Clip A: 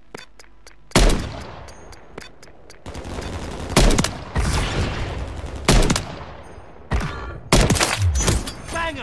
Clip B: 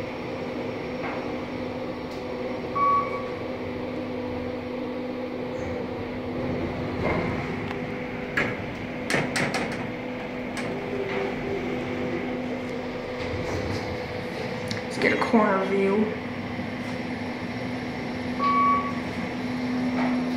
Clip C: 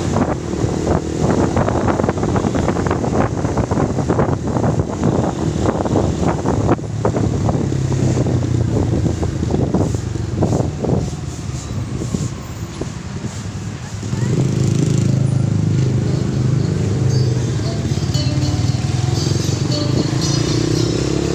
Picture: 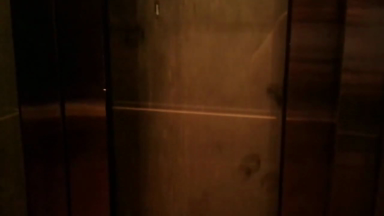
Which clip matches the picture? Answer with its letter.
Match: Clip B